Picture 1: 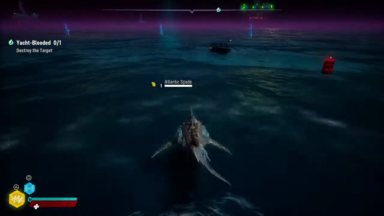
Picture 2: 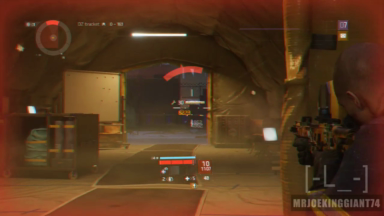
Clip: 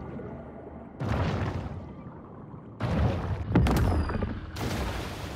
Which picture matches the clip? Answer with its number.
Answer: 1